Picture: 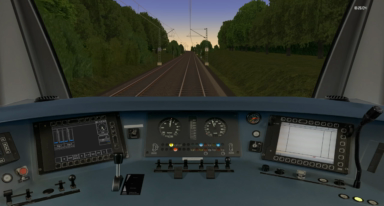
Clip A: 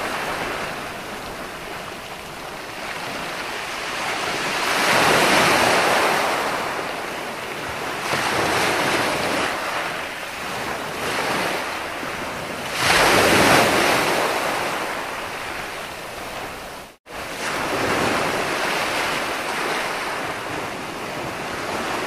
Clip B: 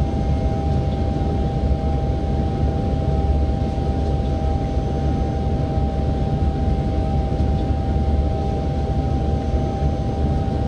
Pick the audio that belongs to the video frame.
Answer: B